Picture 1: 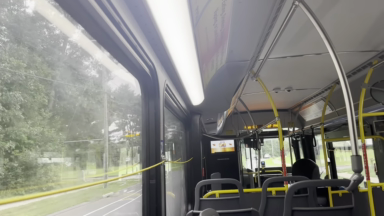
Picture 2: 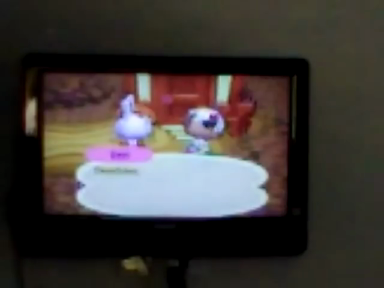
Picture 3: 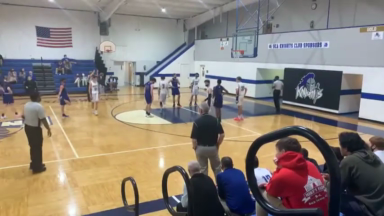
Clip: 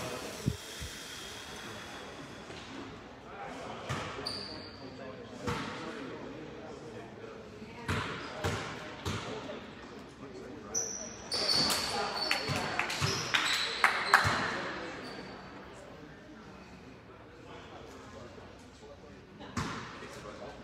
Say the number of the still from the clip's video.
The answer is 3